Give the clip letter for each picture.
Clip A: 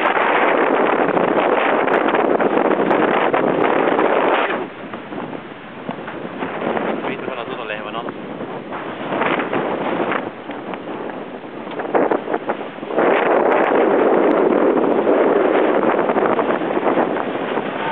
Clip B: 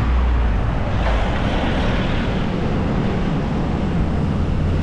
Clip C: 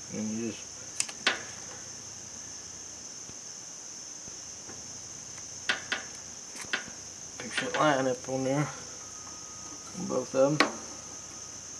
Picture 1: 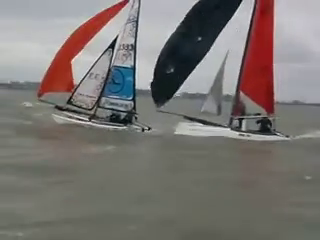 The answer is A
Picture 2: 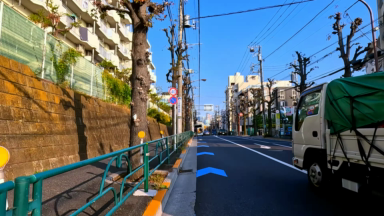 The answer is B